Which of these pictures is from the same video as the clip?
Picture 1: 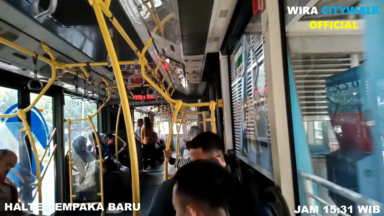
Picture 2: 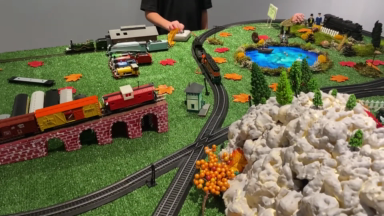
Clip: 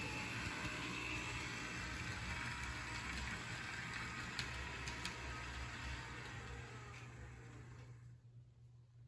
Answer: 2